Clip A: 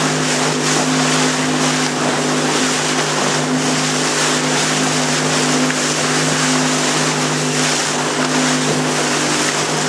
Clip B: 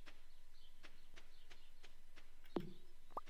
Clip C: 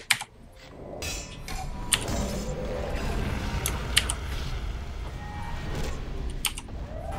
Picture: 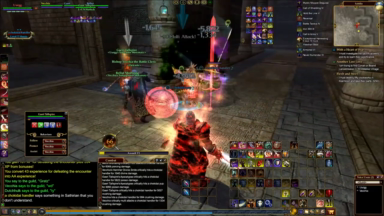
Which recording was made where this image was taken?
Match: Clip C